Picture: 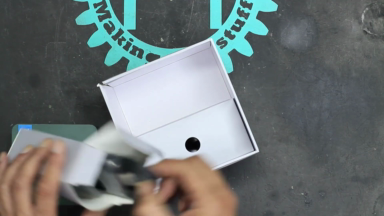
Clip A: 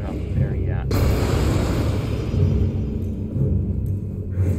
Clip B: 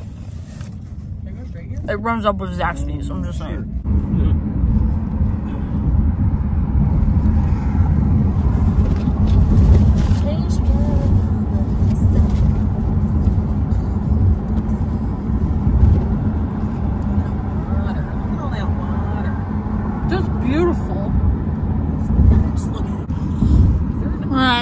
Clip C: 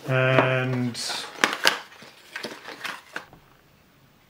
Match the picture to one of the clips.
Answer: C